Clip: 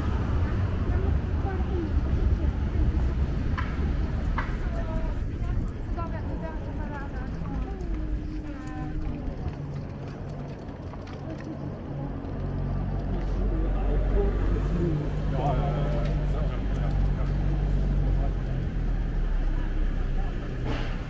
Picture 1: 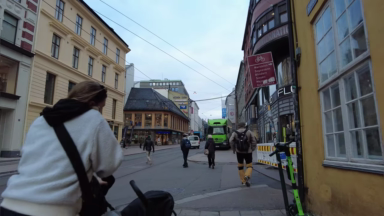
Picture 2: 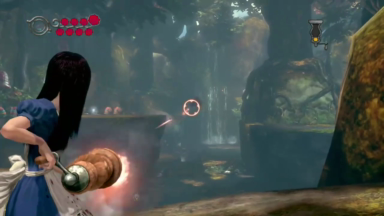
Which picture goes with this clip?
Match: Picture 1